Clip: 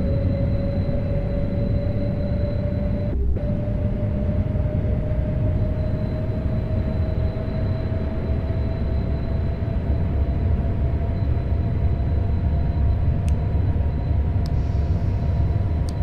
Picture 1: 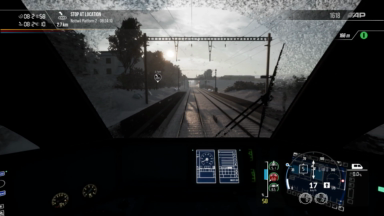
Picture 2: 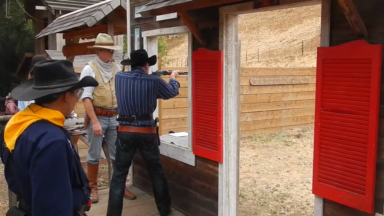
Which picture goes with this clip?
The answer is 1